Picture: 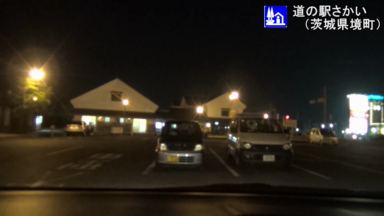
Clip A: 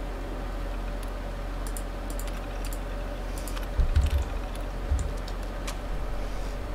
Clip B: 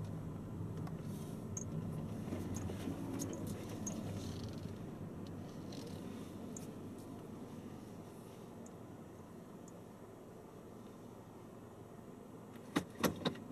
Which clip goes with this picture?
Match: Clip B